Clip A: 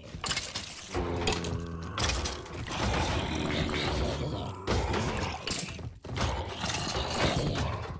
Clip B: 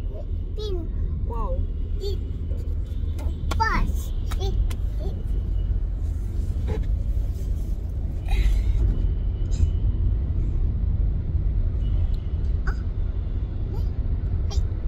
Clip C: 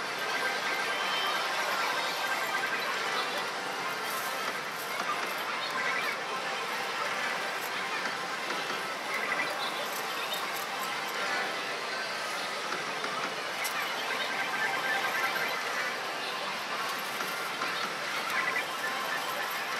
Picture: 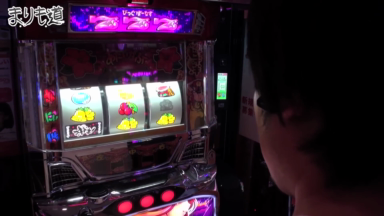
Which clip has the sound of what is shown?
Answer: C